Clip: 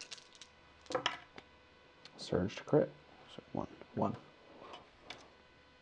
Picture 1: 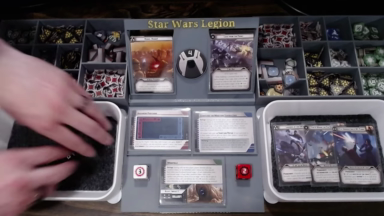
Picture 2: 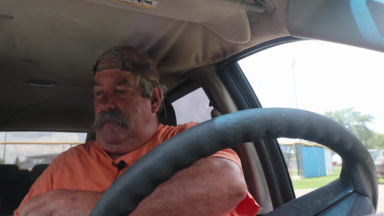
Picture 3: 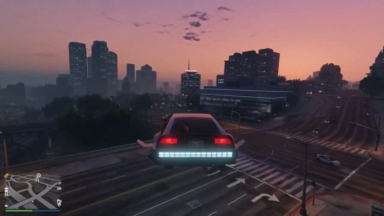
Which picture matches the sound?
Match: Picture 1